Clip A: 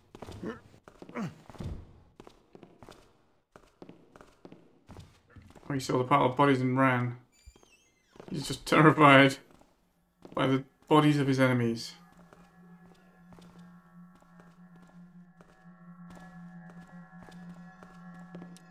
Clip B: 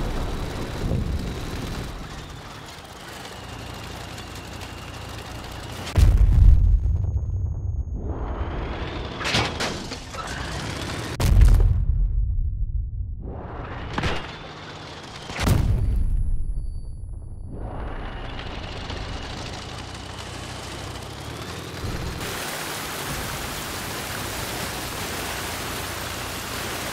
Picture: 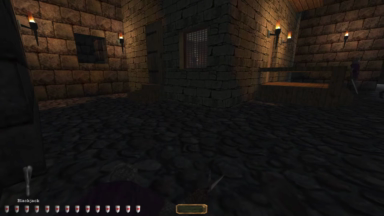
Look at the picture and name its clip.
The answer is A